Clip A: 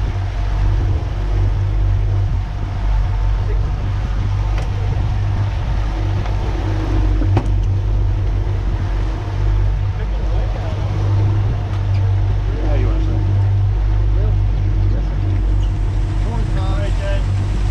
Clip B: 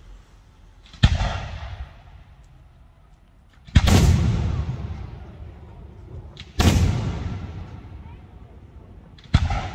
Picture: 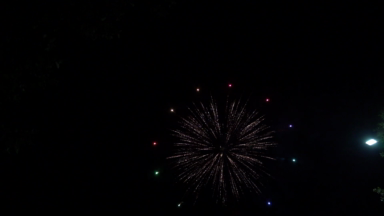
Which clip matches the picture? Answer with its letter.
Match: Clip B